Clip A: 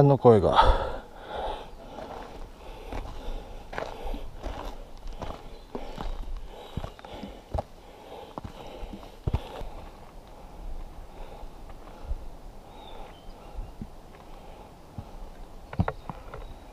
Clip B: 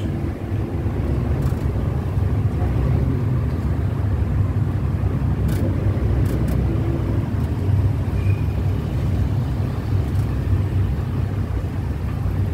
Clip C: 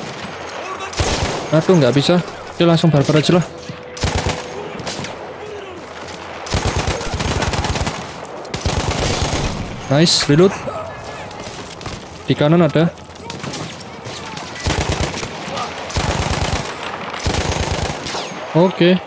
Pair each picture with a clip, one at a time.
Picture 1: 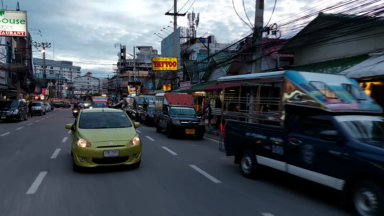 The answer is B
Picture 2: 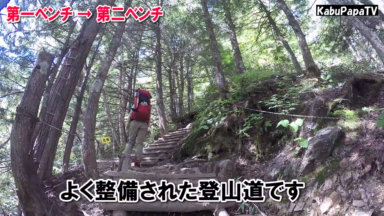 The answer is A